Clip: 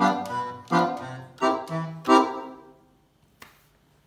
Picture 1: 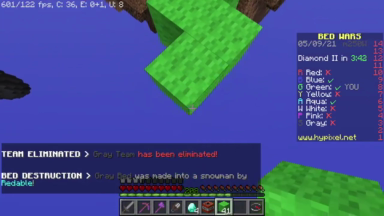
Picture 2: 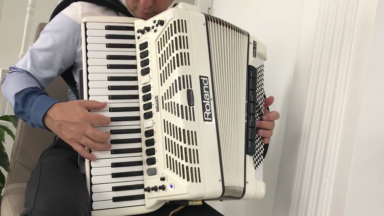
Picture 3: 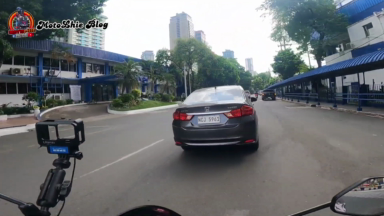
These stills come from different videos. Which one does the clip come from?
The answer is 2